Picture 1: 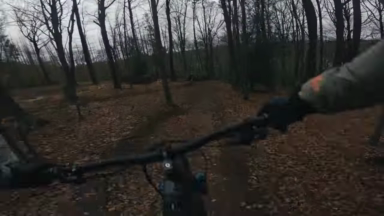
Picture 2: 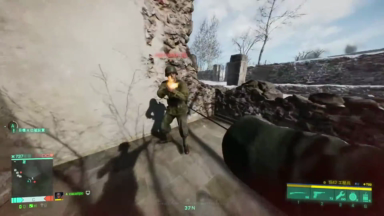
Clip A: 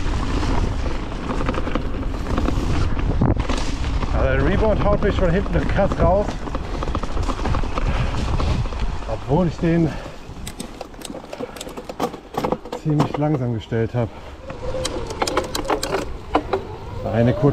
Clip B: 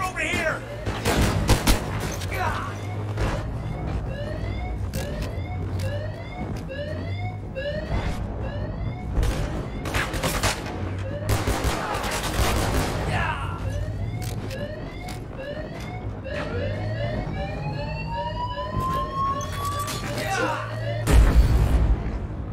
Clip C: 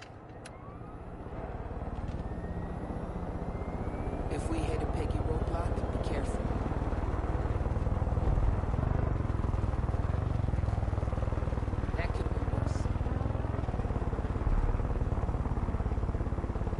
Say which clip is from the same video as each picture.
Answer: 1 A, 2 B